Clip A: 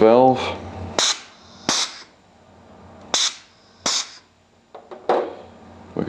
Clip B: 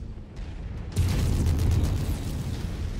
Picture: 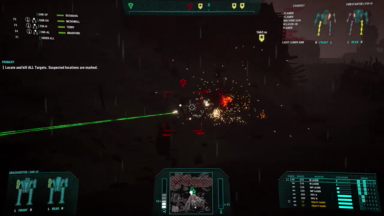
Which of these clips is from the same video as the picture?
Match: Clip B